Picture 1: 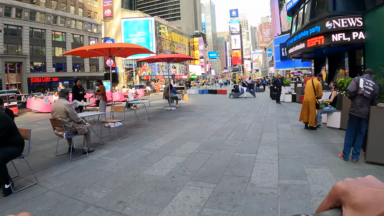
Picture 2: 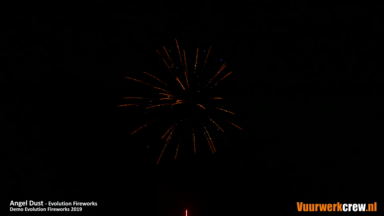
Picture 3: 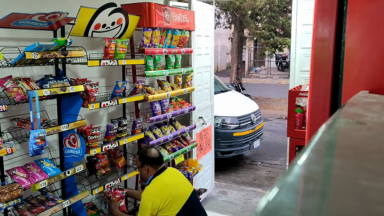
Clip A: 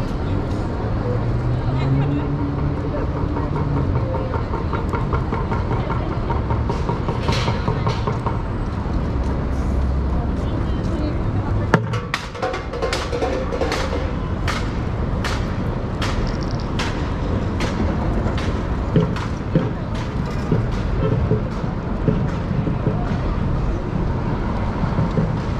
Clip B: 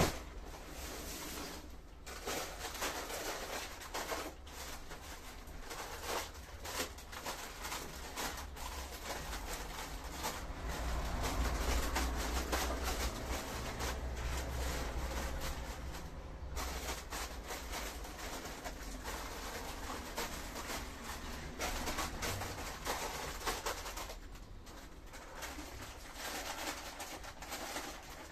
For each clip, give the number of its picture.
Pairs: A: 1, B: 3